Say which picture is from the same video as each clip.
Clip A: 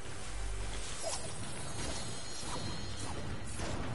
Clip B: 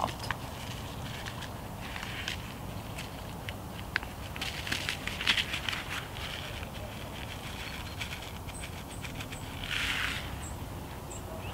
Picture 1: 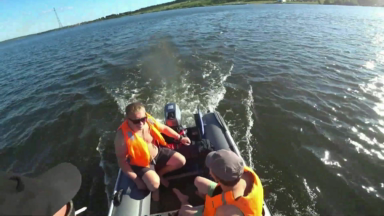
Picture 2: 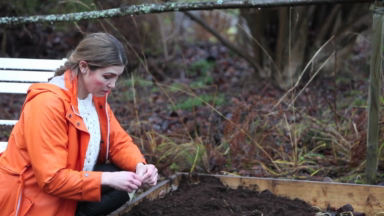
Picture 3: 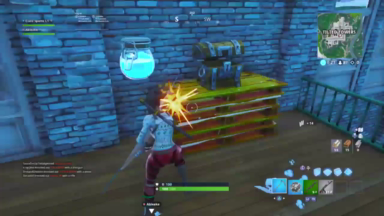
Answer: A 3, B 2